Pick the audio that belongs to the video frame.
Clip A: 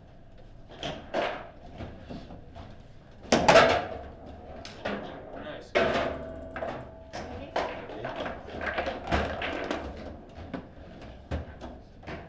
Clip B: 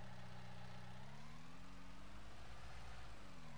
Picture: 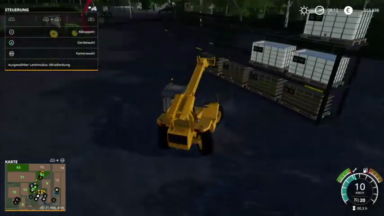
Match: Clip B